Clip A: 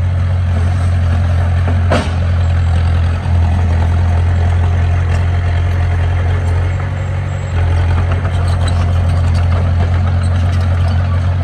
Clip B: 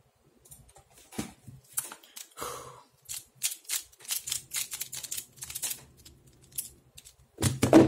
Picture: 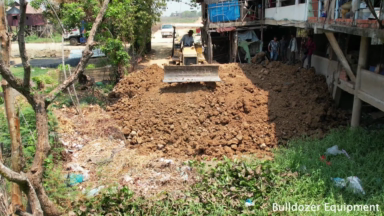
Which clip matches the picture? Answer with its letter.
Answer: A